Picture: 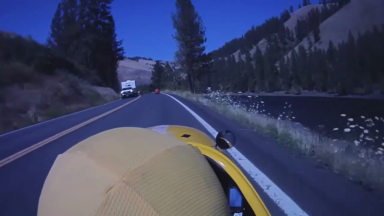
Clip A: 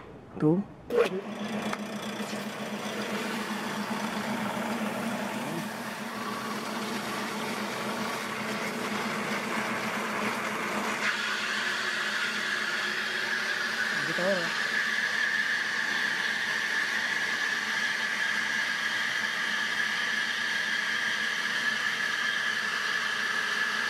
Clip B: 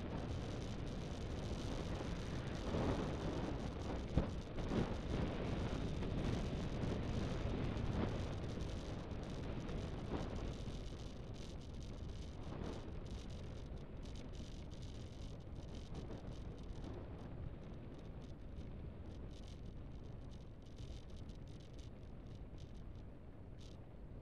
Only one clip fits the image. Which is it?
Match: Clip B